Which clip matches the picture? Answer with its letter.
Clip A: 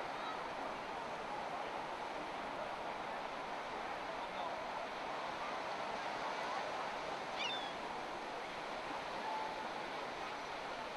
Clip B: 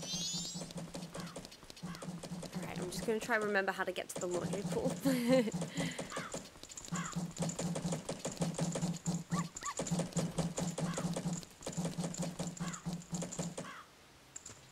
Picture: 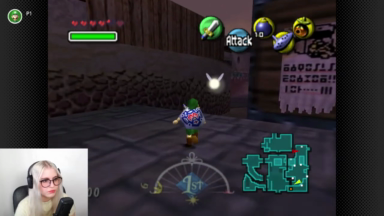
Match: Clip B